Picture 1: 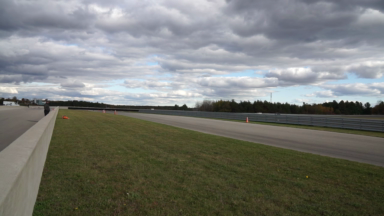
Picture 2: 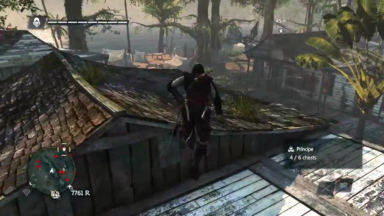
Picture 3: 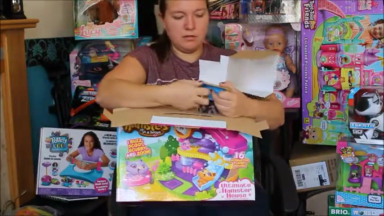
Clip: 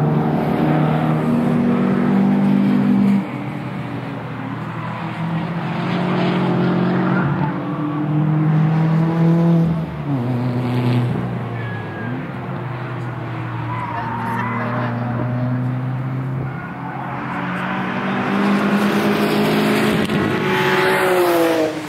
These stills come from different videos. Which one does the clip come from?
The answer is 1